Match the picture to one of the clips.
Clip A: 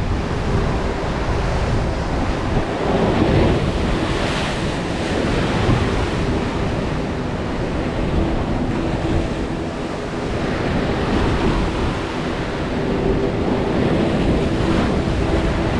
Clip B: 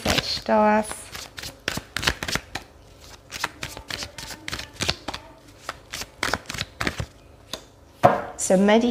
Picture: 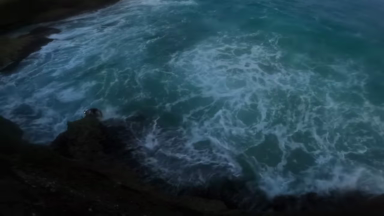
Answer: A